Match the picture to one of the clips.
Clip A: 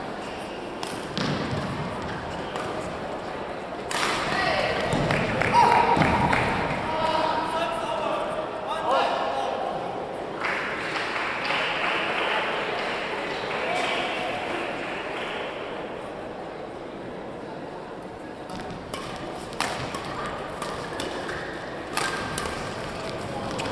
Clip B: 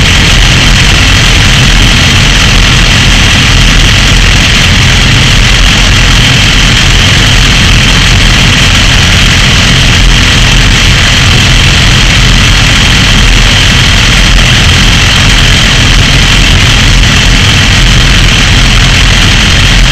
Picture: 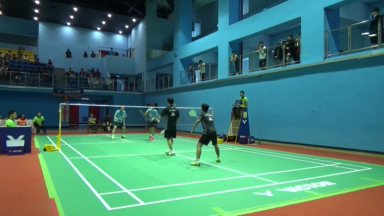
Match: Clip A